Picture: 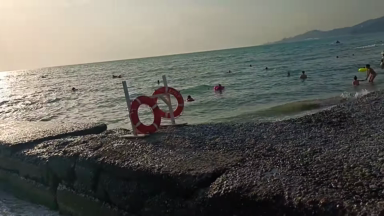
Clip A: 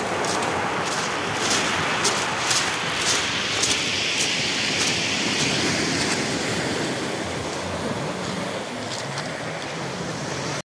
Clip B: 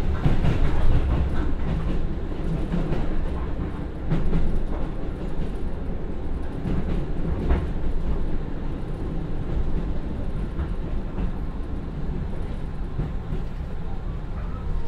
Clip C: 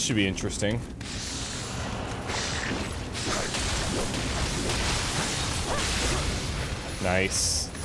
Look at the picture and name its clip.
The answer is A